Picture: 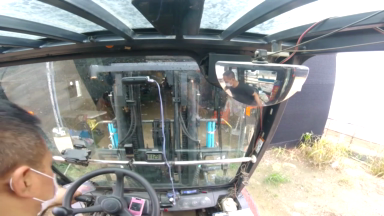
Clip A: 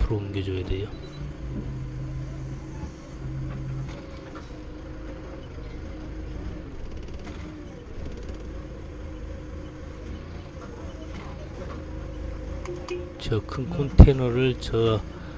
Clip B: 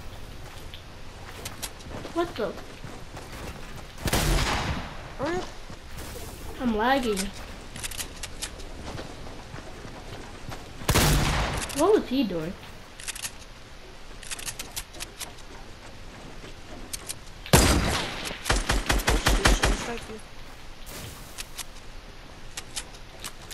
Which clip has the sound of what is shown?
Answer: A